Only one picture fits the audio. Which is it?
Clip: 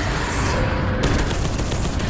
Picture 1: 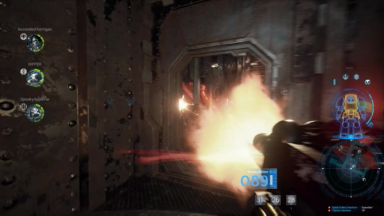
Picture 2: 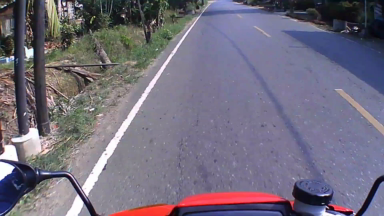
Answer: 1